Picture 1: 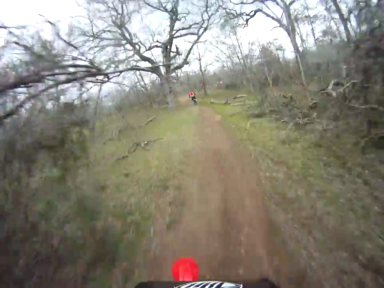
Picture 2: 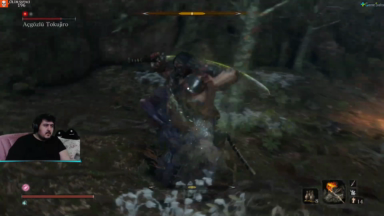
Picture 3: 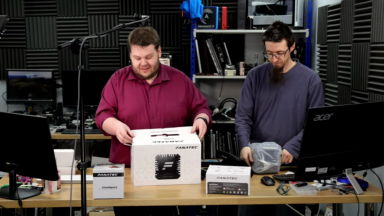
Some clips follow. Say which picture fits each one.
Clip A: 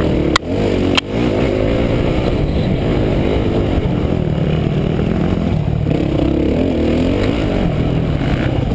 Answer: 1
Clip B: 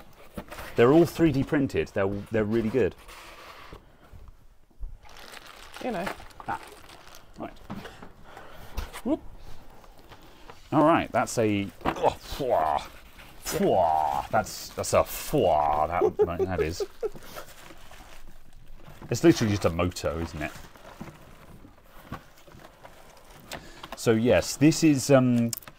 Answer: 3